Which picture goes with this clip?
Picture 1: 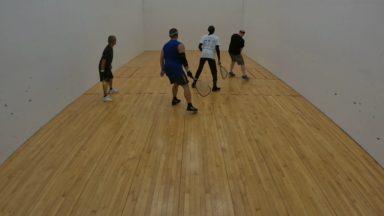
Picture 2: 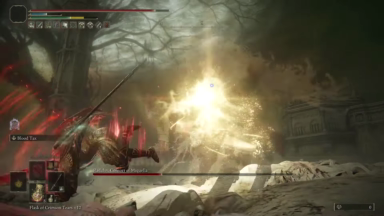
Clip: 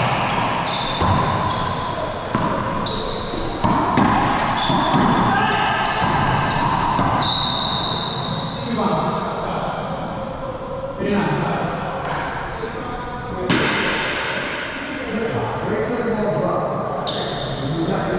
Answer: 1